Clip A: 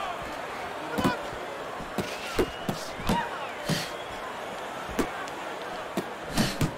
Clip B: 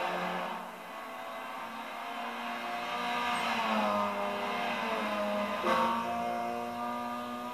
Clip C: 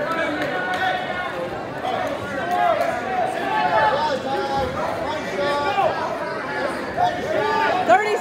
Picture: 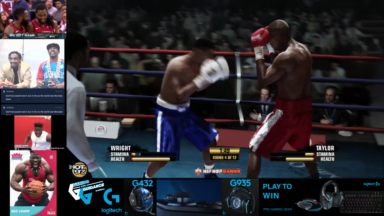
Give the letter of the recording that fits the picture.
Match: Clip A